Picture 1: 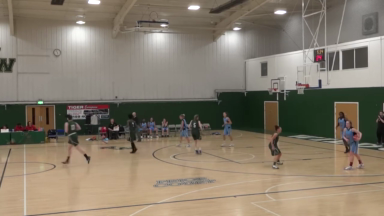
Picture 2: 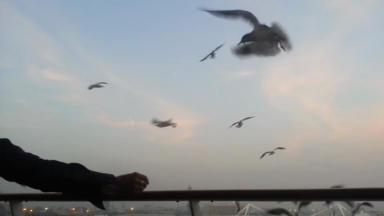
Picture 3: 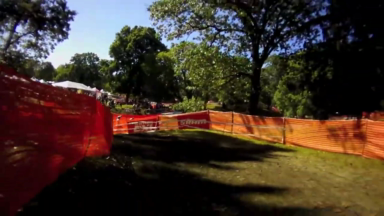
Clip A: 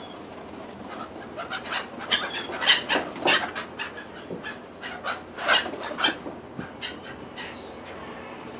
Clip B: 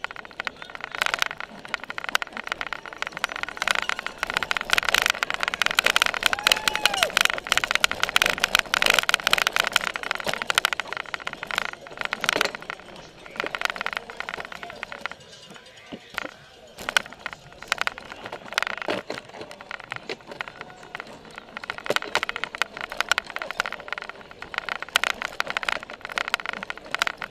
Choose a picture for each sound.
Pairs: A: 2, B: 3